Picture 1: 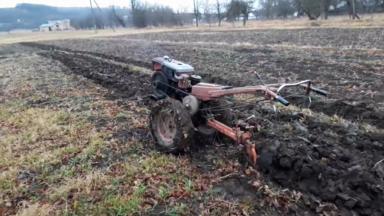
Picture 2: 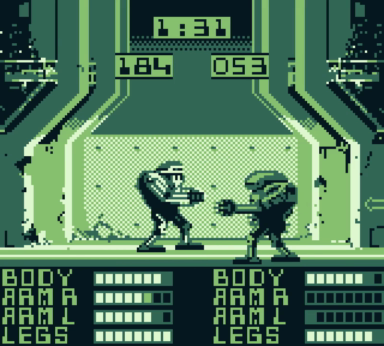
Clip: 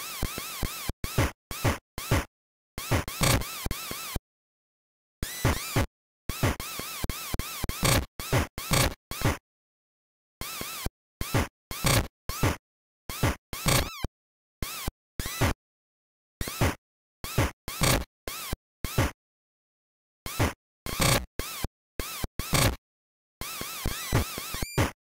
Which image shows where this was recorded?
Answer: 2